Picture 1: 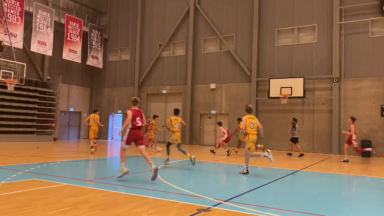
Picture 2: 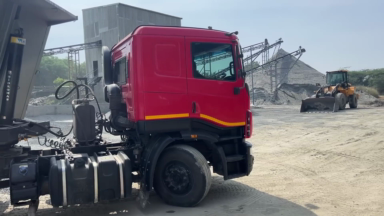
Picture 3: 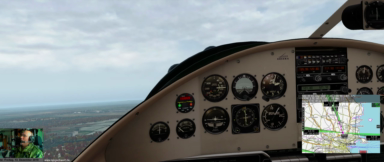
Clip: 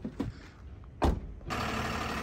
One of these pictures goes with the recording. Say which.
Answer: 2